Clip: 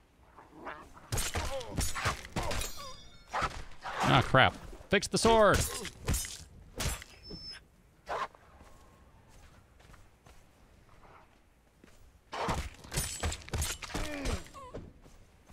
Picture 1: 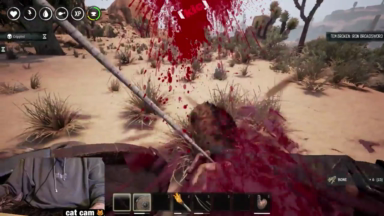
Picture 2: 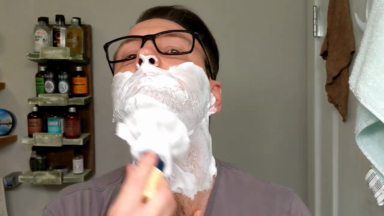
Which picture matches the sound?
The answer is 1